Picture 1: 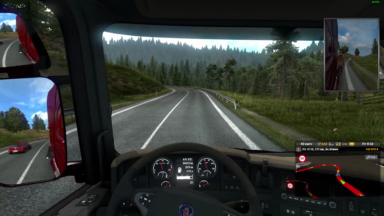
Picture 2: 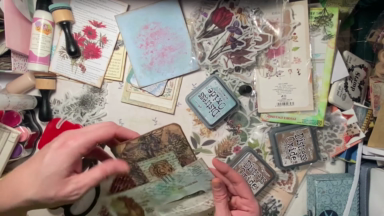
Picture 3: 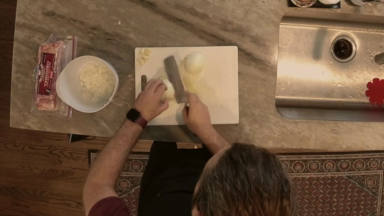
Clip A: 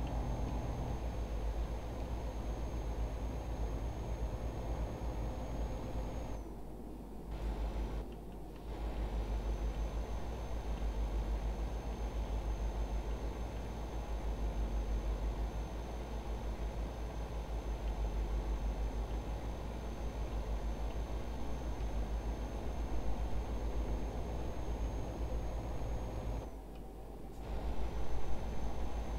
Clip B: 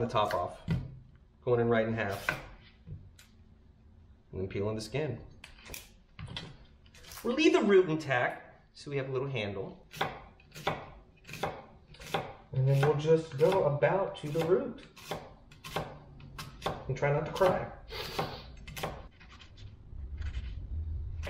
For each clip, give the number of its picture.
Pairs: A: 1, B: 3